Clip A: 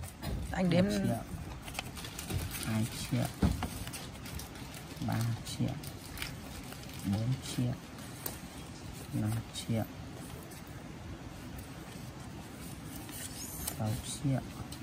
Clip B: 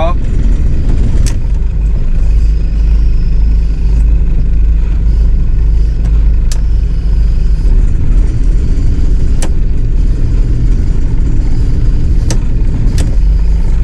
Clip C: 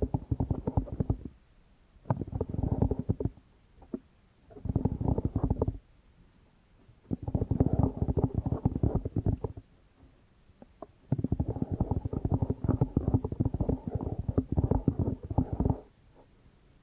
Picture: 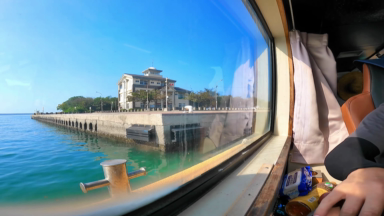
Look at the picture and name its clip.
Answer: B